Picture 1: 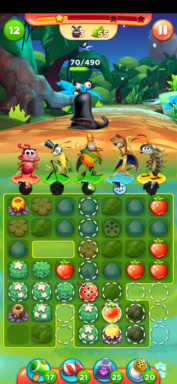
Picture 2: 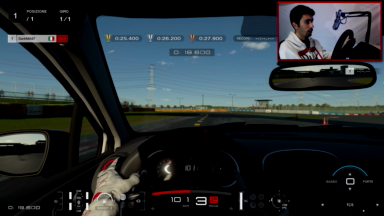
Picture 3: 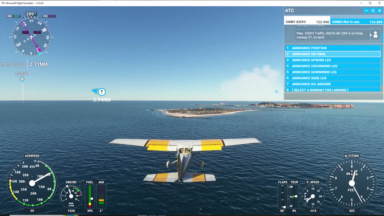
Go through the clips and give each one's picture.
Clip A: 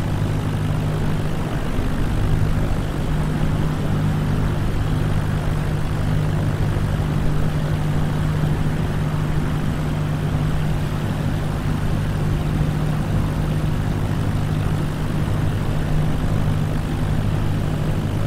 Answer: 3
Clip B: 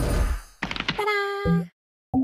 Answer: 1